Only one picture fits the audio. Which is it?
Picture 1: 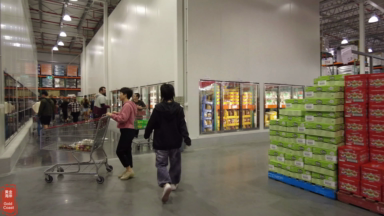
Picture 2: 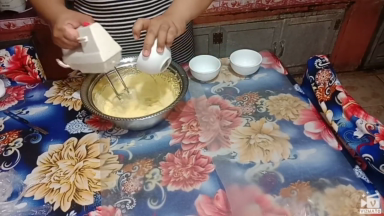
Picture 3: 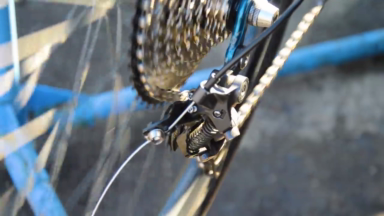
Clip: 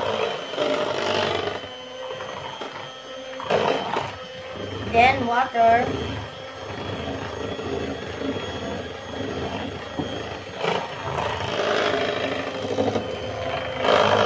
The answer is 2